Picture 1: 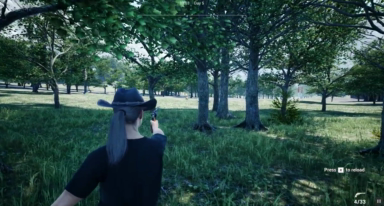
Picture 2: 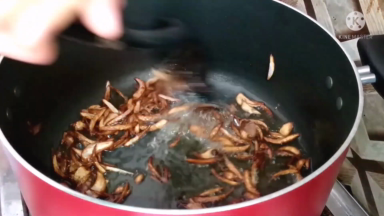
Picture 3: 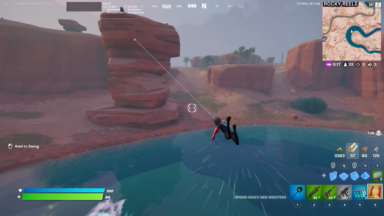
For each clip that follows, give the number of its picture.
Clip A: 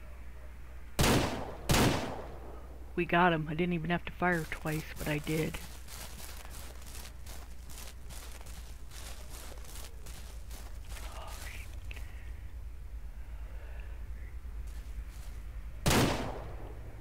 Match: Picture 1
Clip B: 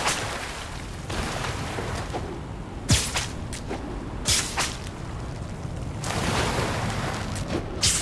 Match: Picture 3